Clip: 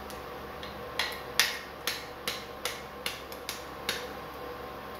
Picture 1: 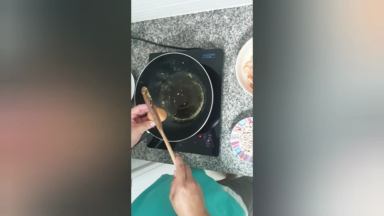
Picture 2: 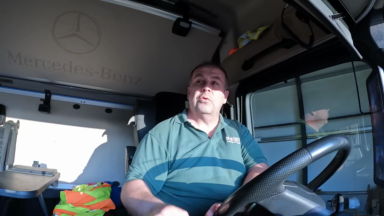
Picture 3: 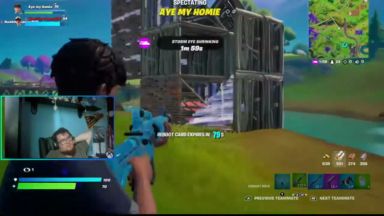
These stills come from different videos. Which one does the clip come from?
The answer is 1